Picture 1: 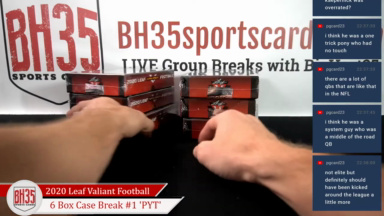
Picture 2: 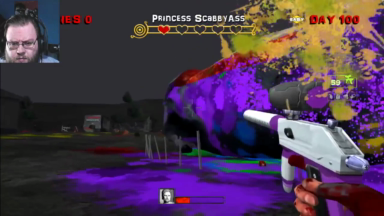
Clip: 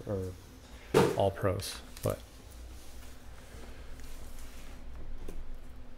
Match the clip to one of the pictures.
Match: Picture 1